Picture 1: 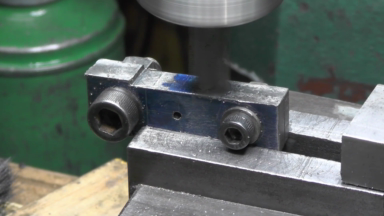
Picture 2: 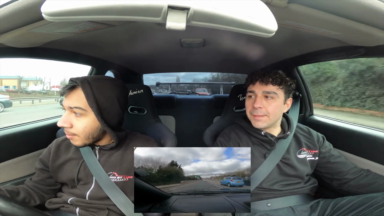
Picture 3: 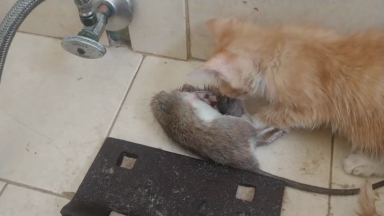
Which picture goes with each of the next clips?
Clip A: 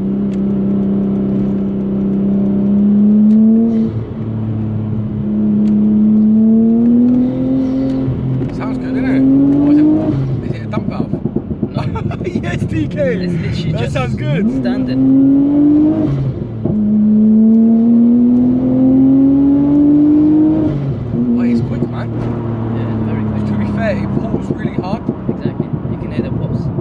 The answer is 2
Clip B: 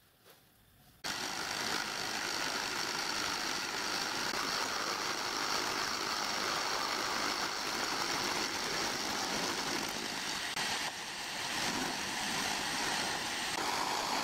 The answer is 1